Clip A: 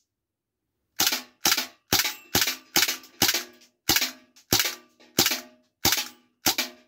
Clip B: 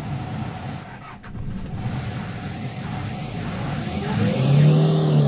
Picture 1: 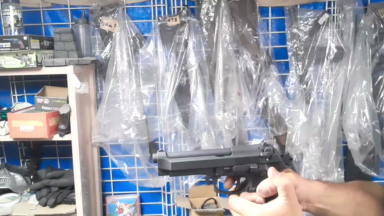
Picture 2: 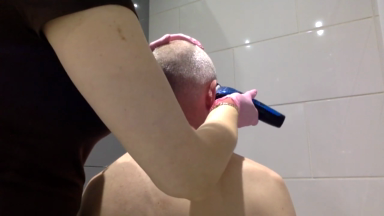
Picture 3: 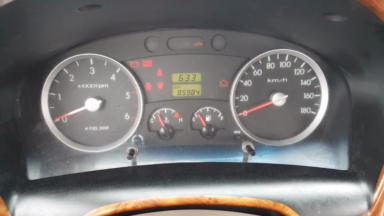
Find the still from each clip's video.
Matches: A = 1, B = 3